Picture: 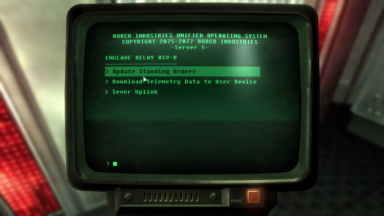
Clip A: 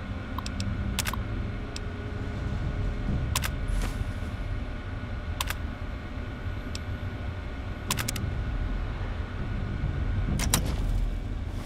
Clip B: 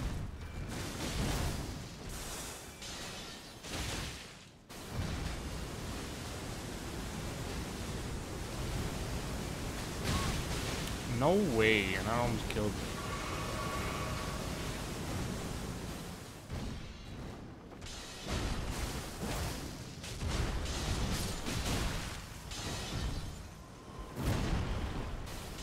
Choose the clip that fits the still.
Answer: A